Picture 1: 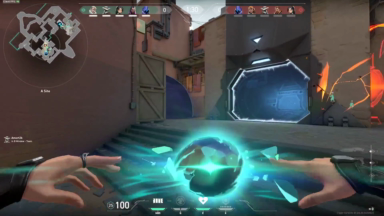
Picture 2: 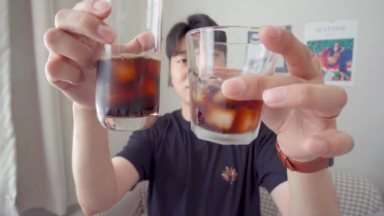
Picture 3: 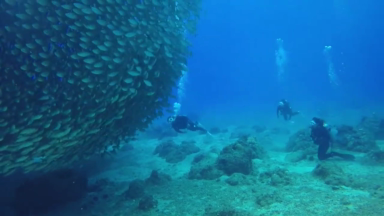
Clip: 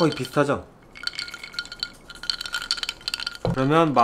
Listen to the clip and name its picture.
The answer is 2